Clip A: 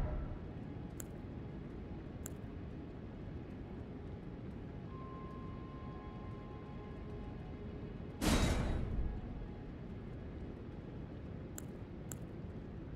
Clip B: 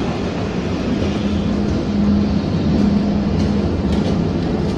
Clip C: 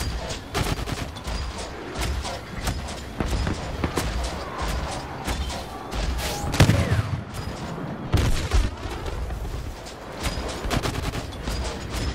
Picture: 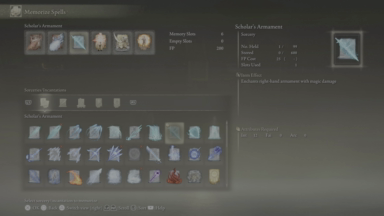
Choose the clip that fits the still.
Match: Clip A